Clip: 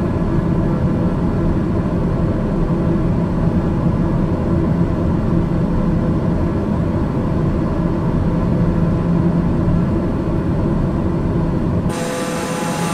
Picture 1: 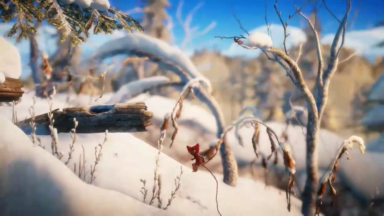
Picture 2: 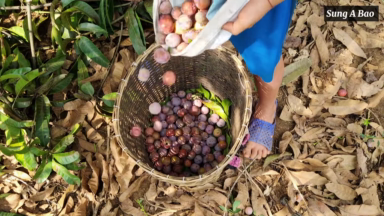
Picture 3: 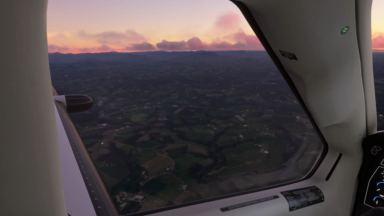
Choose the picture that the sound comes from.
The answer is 3